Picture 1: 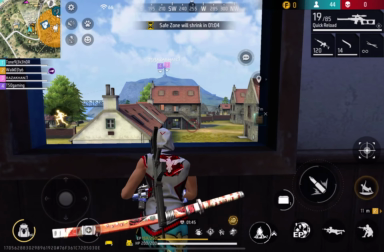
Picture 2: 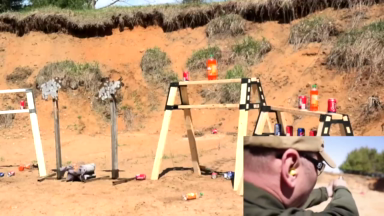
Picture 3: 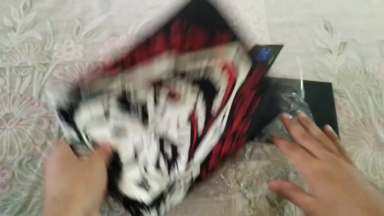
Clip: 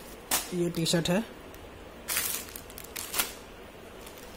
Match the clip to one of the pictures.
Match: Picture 3